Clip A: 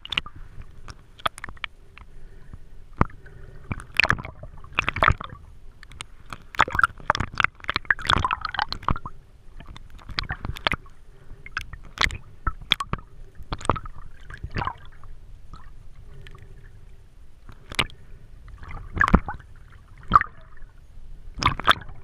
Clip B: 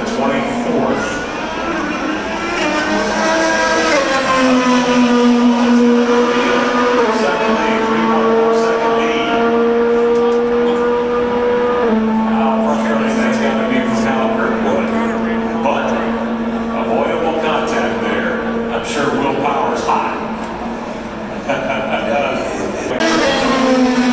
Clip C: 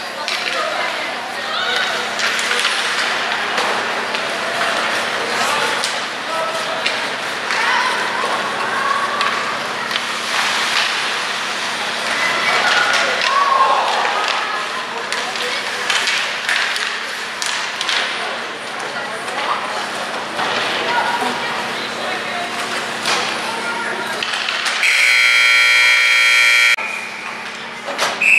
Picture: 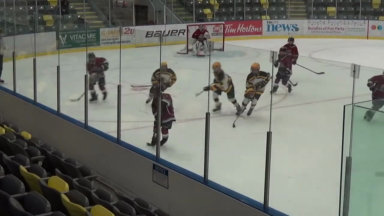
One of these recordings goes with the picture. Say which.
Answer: C